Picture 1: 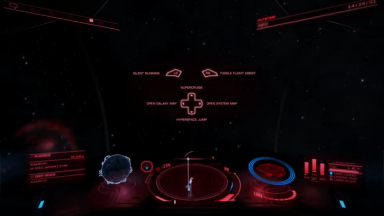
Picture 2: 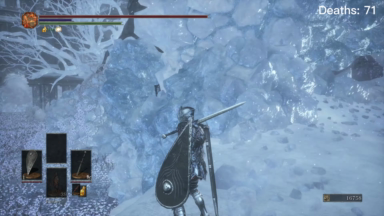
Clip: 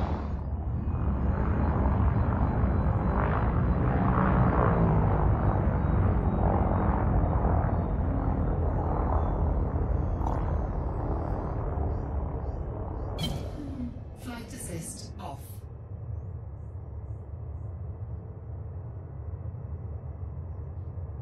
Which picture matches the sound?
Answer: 1